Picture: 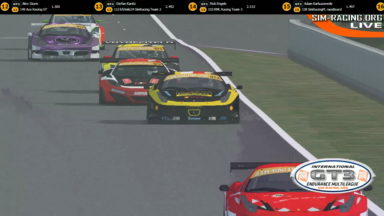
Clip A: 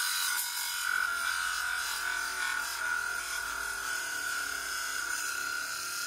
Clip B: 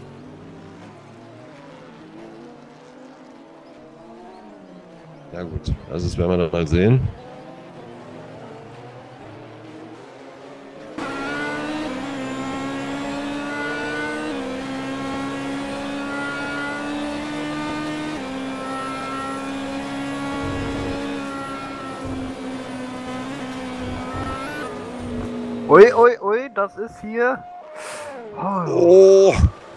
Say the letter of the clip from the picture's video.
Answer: B